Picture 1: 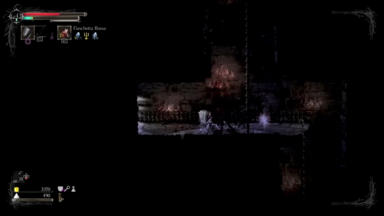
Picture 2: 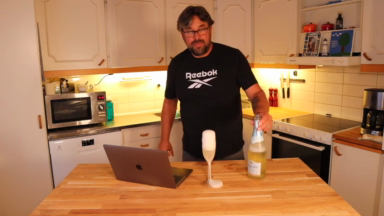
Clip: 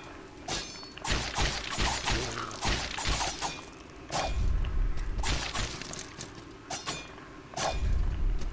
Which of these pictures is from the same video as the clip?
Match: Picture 1